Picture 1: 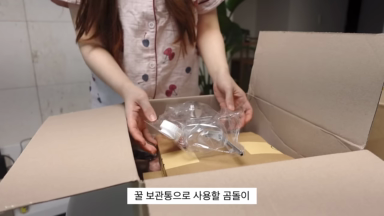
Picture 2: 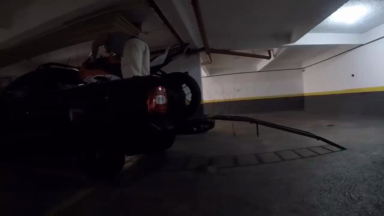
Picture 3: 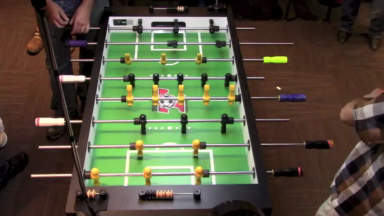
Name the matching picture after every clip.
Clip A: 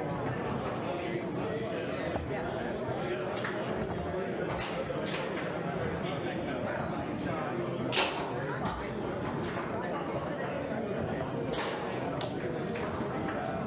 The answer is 3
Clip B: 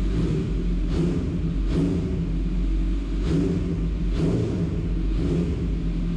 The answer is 2